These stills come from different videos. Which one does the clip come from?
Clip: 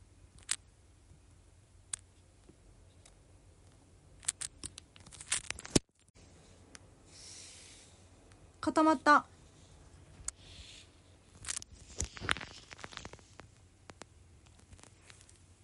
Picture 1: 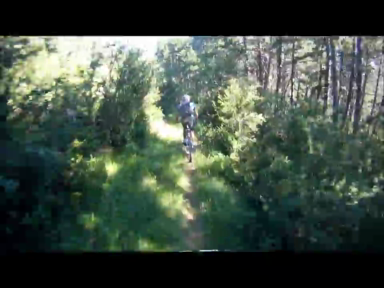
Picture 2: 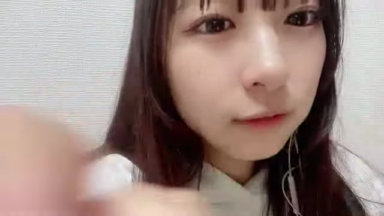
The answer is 2